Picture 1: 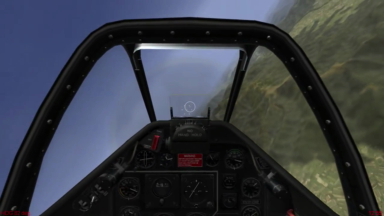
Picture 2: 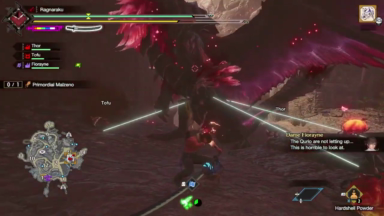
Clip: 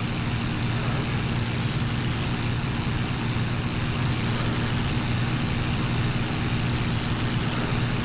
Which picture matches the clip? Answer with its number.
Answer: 1